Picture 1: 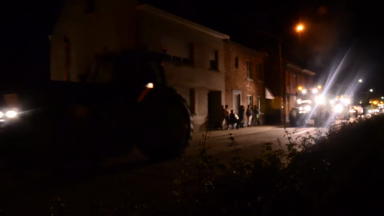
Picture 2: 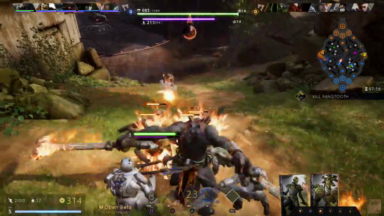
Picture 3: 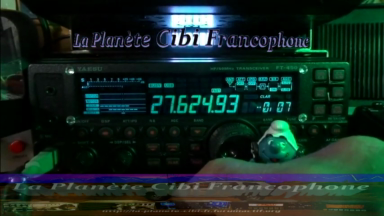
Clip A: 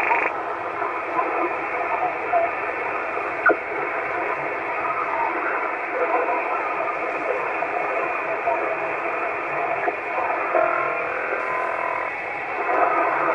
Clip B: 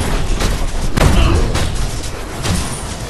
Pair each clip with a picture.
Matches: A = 3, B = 2